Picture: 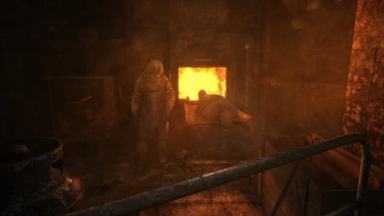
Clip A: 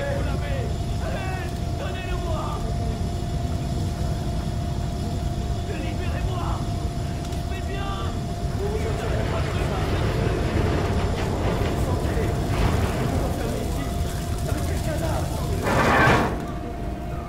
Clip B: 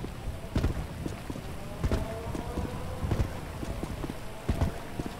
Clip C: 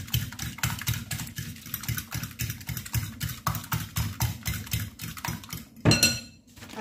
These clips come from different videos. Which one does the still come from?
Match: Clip A